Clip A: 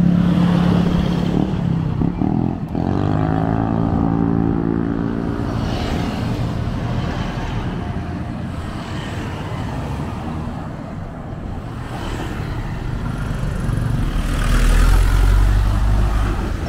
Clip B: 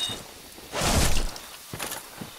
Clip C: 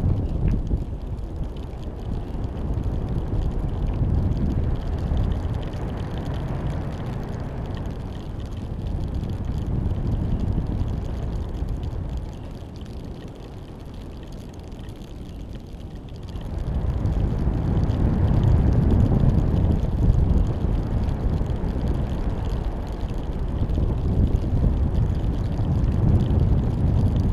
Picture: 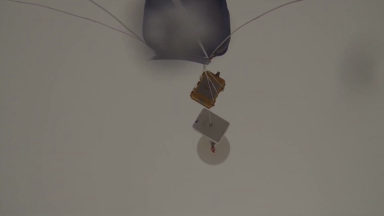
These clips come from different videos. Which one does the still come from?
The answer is C